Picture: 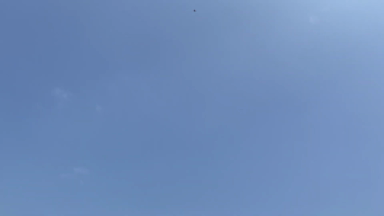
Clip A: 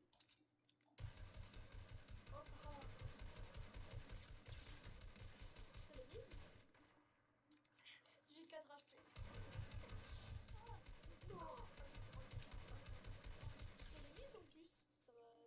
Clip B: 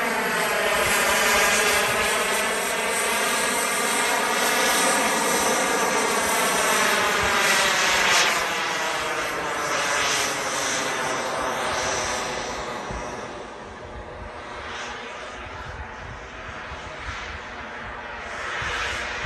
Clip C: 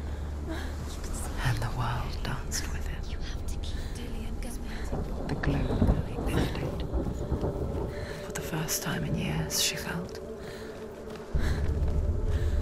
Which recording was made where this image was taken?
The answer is B